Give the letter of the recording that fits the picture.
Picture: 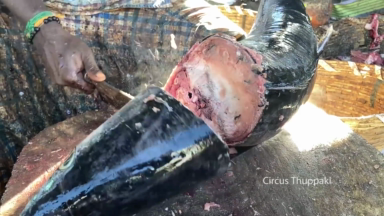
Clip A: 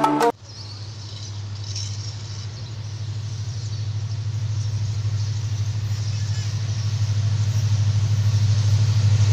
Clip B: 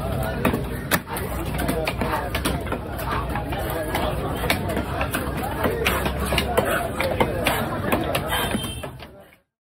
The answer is B